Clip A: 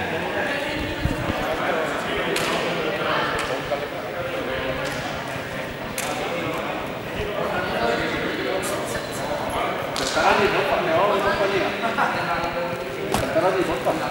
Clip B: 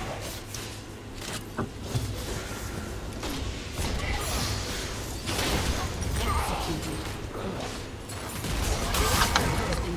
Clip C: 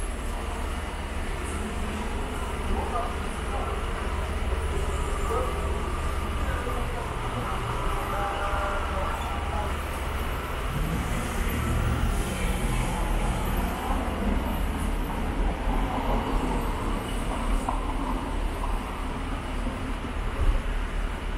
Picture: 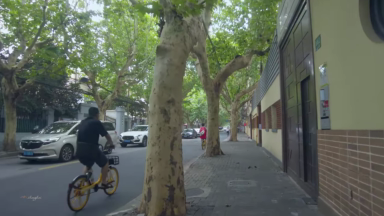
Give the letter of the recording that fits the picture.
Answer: C